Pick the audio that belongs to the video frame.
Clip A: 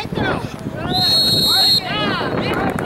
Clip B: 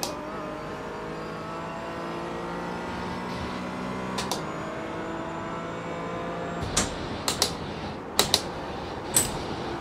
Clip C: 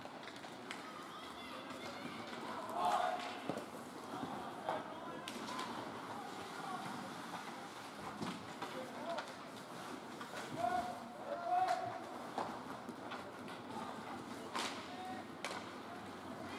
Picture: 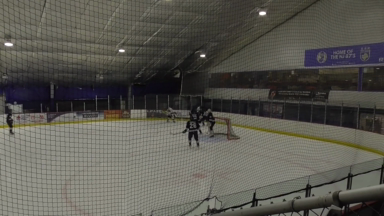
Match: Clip C